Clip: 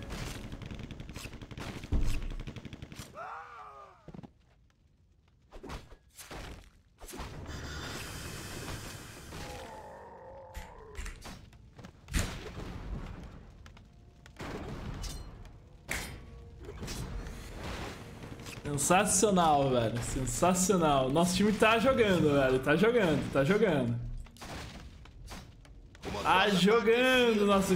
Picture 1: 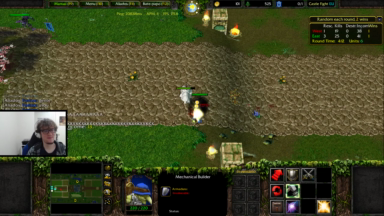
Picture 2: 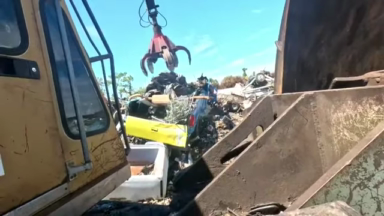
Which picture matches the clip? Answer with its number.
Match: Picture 1